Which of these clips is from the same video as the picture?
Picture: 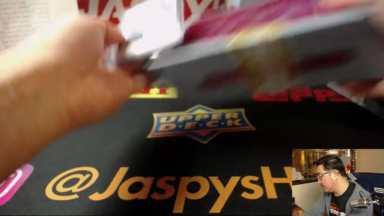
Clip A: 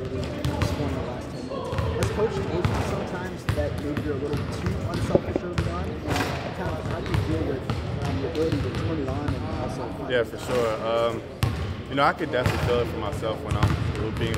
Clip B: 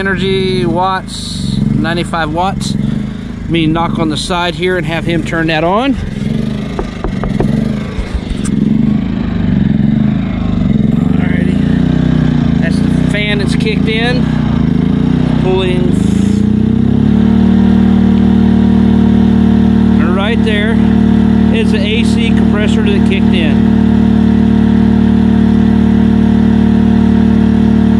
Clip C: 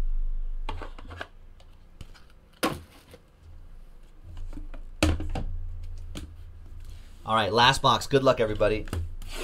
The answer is C